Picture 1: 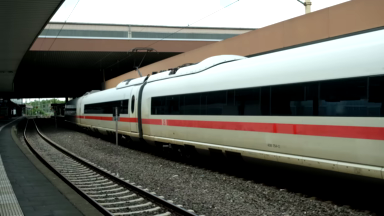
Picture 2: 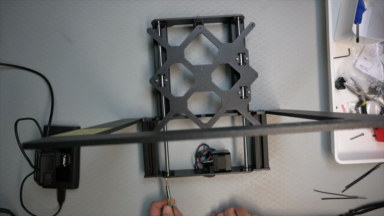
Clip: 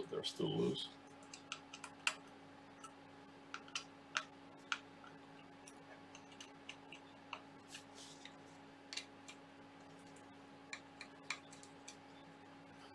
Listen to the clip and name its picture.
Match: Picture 2